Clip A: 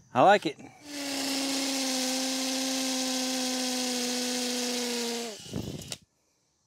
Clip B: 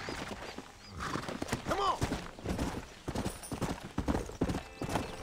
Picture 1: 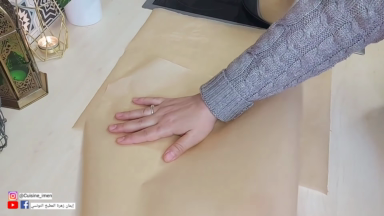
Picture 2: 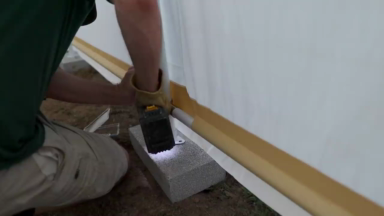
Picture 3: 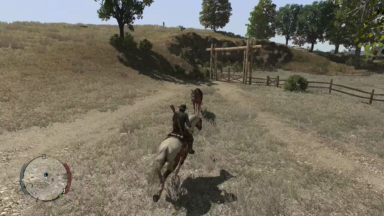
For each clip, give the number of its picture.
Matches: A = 2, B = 3